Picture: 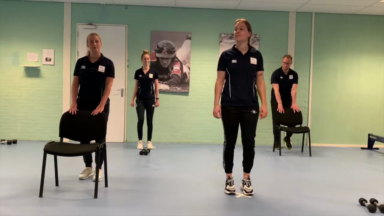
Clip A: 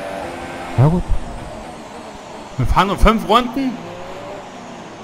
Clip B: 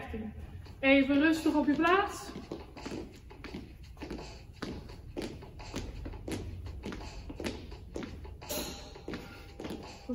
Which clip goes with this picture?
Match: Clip B